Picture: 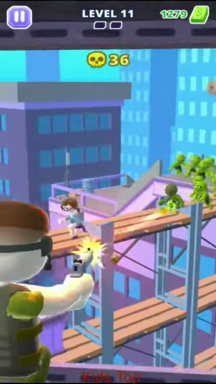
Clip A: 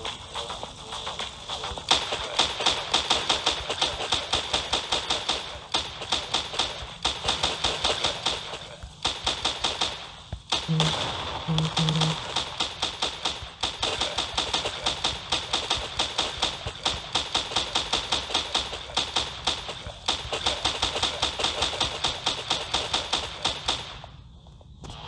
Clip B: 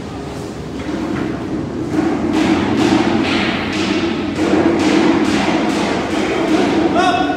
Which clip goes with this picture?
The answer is A